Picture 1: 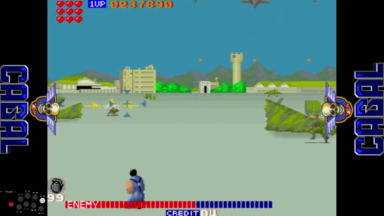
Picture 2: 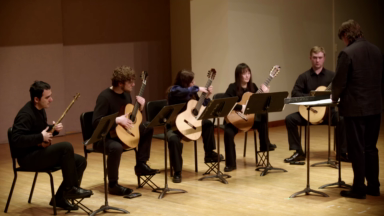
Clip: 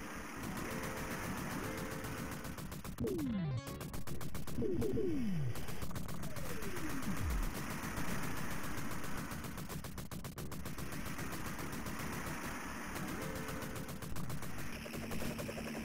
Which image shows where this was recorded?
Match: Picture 1